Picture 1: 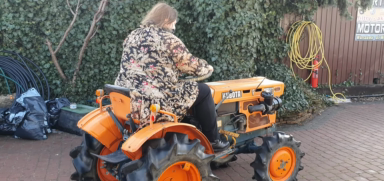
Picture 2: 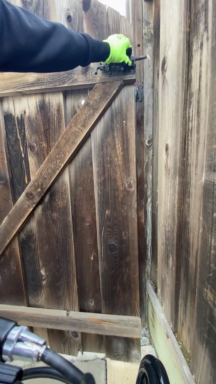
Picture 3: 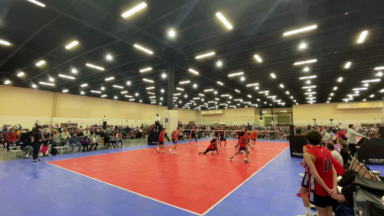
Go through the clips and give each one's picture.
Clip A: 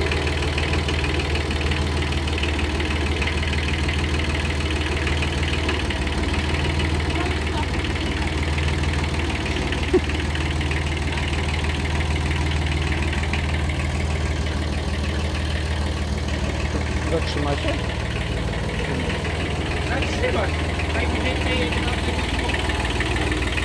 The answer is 1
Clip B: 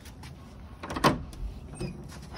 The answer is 2